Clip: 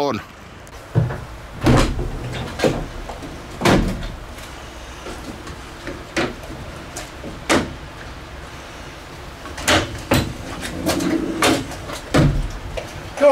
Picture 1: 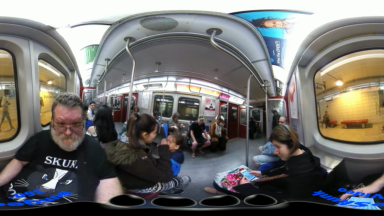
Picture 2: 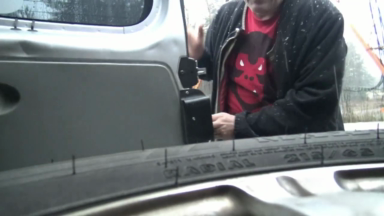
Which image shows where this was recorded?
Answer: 2